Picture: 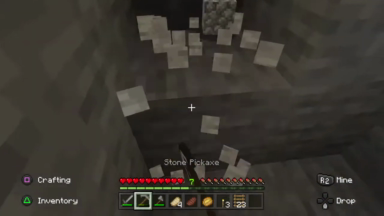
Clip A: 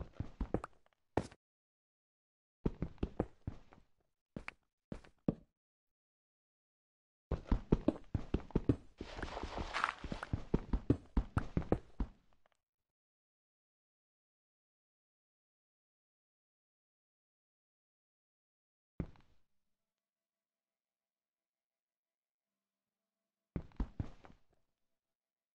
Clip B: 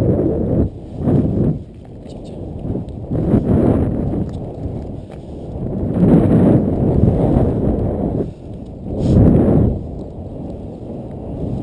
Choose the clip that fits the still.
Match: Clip A